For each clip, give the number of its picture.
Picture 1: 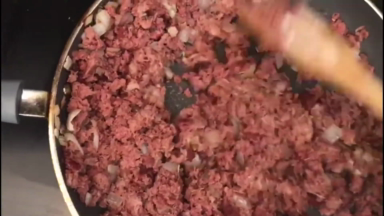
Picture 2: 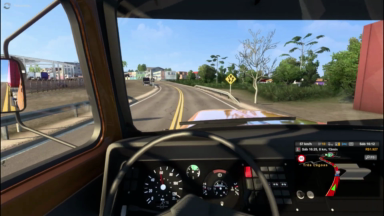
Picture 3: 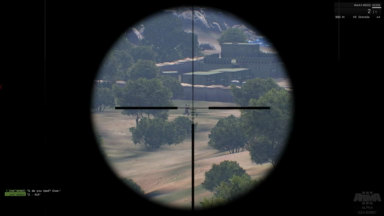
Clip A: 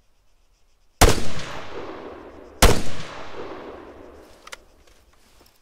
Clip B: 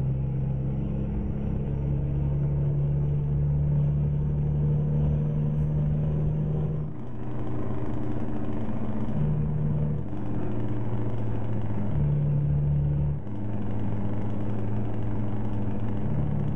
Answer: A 3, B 2